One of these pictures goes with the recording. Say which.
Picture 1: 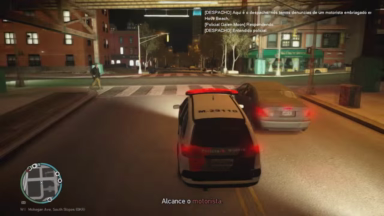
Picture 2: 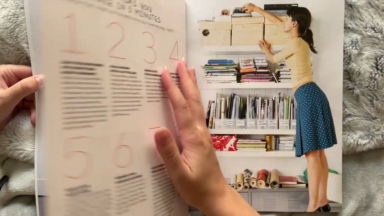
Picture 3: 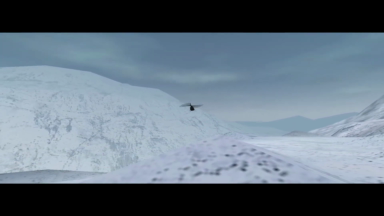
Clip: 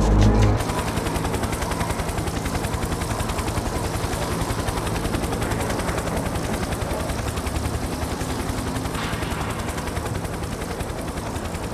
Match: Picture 3